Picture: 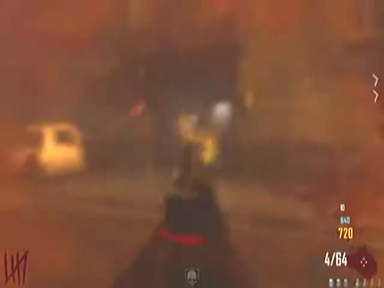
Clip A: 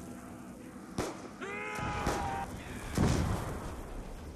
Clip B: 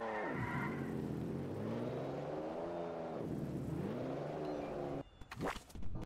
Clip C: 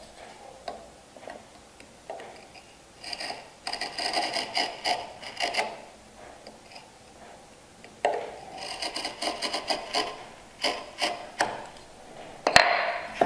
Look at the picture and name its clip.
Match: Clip A